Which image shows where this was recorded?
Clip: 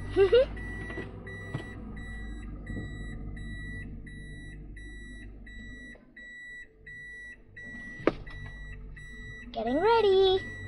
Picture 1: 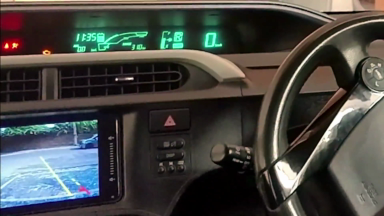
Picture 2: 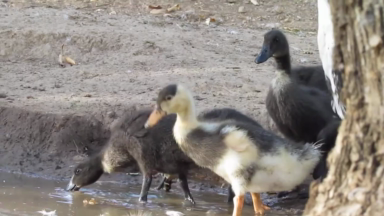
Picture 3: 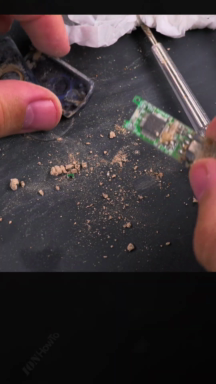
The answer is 1